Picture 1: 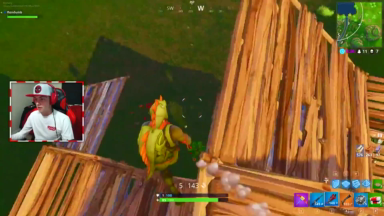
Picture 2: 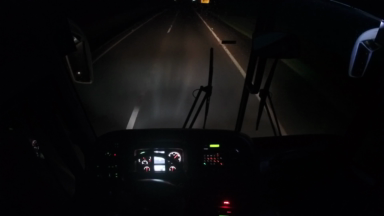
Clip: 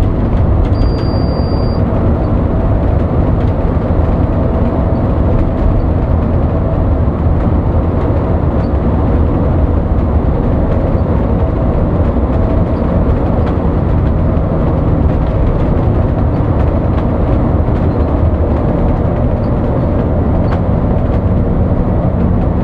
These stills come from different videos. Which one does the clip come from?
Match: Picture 2